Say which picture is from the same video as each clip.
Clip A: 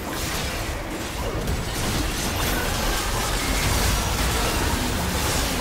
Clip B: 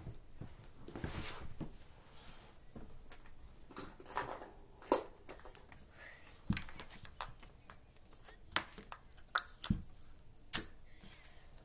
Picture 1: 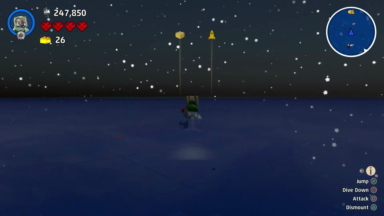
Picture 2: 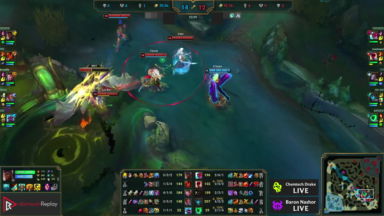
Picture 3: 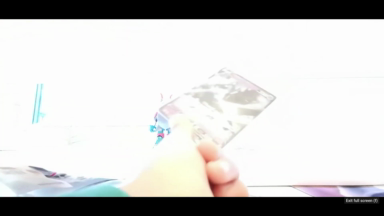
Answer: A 2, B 3